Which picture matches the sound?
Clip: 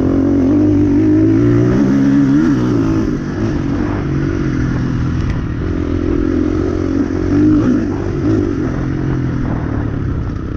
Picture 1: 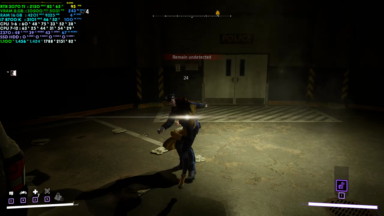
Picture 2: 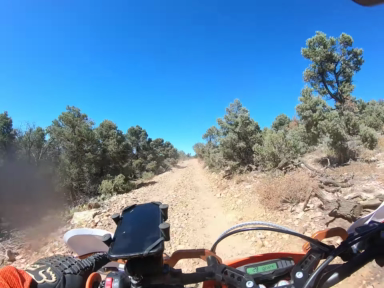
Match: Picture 2